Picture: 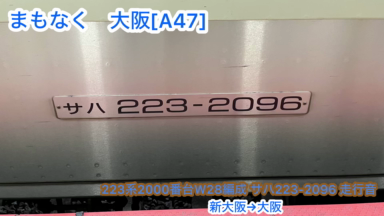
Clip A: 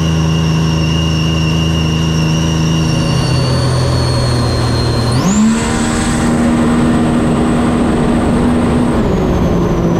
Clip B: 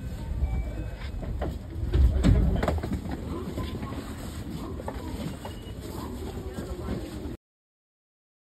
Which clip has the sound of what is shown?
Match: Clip B